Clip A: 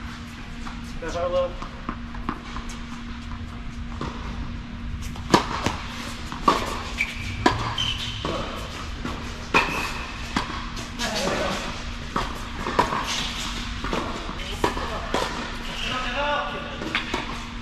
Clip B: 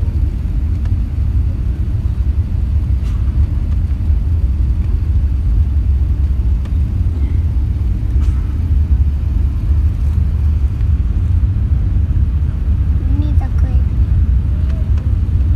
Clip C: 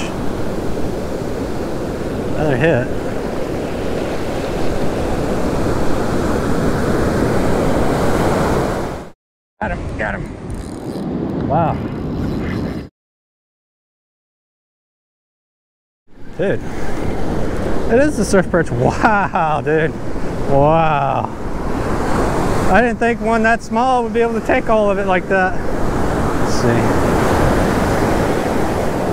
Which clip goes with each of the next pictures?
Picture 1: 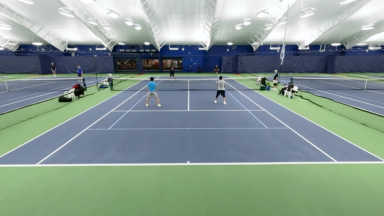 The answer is A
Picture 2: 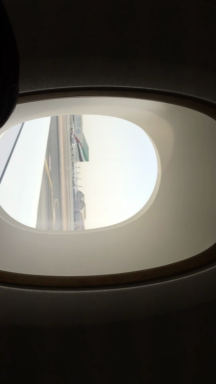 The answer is B